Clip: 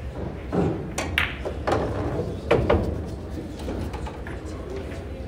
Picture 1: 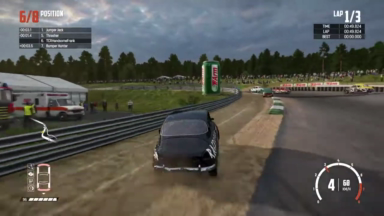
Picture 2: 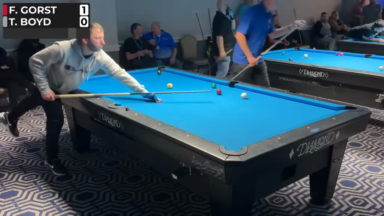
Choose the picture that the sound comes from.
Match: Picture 2